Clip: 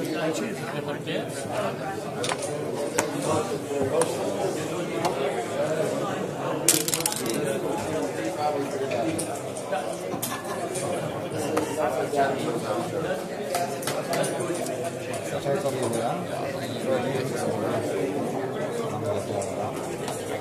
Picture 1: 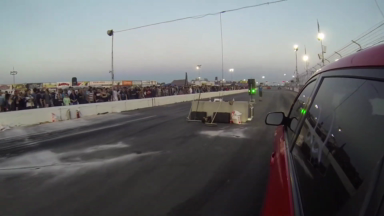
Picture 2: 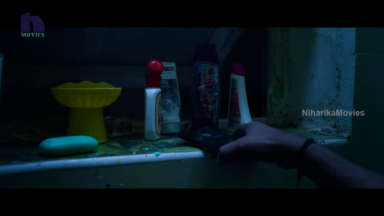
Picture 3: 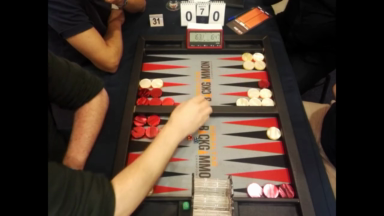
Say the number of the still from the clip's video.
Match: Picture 3